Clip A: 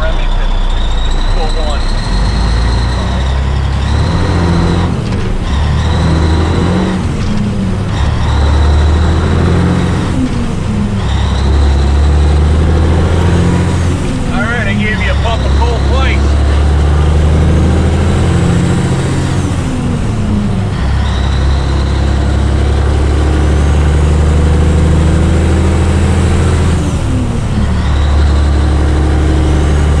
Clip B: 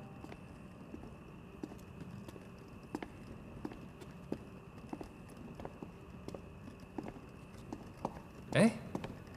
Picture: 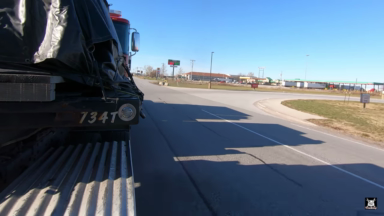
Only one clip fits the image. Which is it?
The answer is A